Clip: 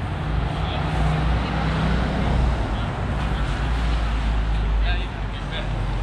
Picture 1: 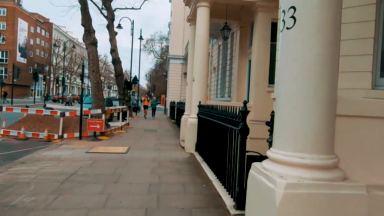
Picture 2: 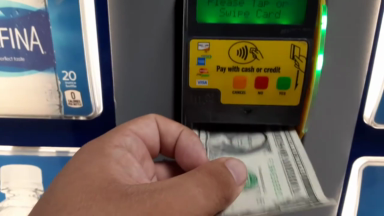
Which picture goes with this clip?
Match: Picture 1